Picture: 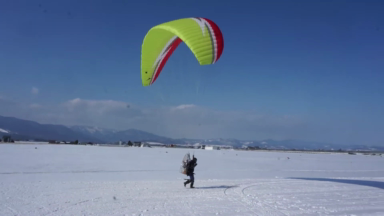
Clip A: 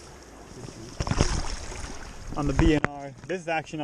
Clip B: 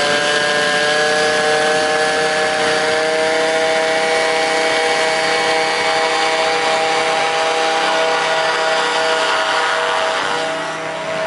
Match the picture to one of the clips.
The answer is B